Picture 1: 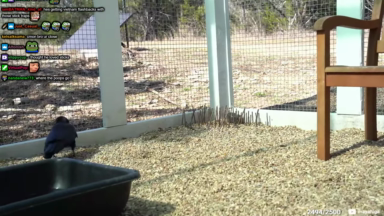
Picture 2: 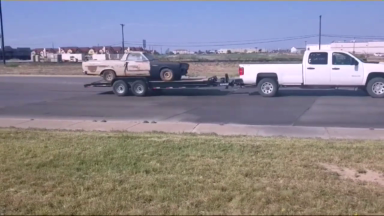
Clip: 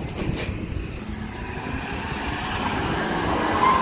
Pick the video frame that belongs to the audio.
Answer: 2